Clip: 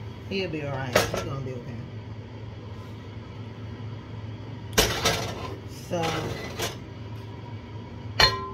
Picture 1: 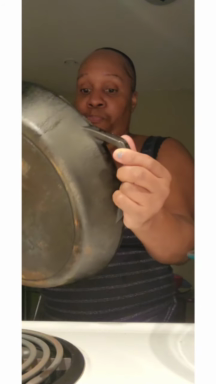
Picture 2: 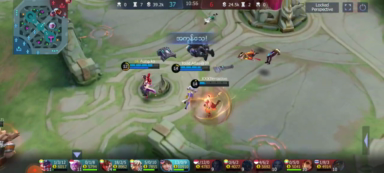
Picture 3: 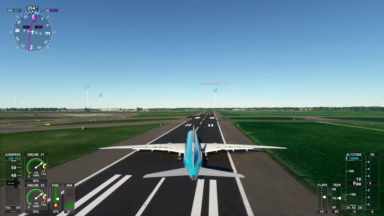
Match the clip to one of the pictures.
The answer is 1